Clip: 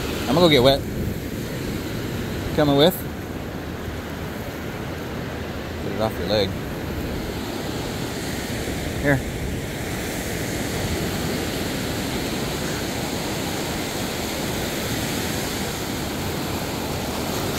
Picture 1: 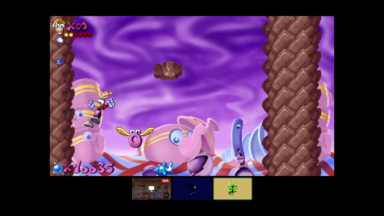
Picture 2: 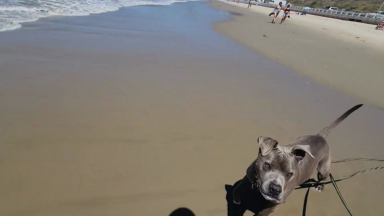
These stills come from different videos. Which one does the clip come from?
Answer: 2